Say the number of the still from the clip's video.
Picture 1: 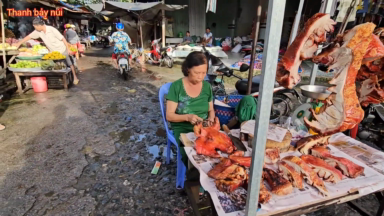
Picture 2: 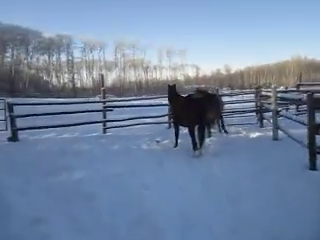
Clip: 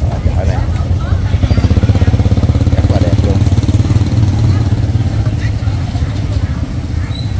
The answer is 1